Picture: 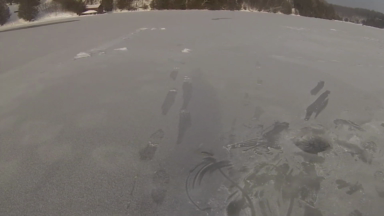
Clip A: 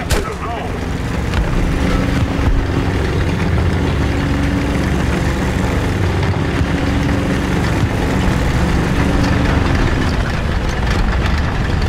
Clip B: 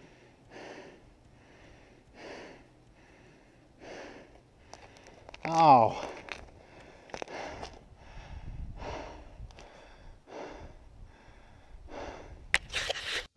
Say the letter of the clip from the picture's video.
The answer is B